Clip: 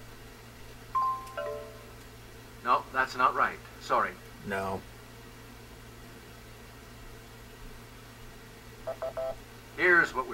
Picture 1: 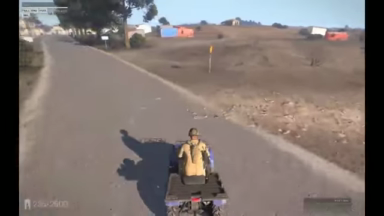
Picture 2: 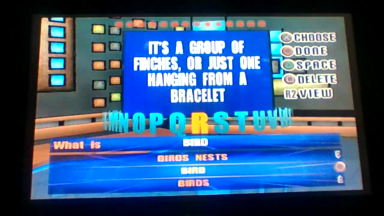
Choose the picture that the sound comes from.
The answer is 2